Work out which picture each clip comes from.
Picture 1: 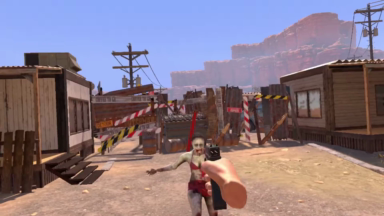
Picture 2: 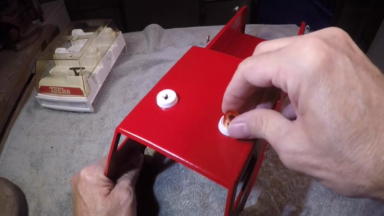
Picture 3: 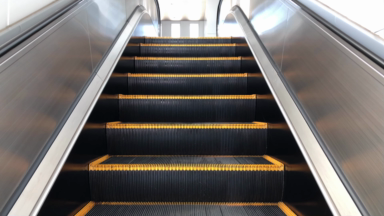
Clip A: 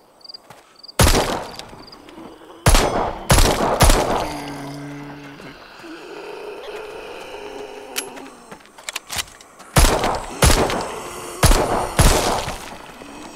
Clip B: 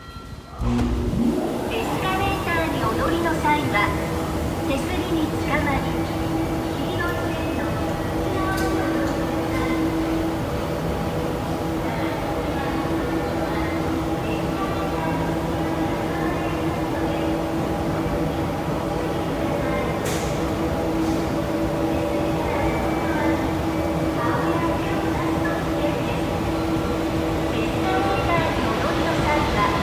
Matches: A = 1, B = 3